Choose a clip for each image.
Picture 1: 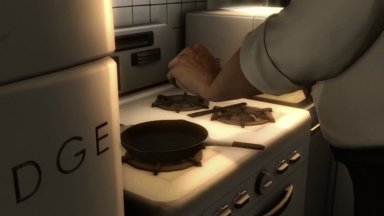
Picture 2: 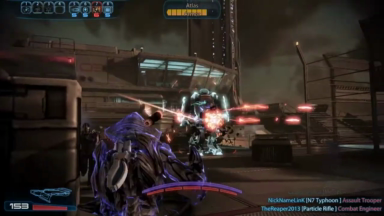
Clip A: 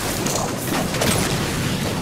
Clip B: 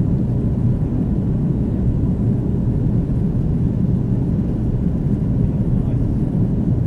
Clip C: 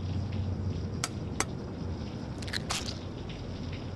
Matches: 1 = C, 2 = A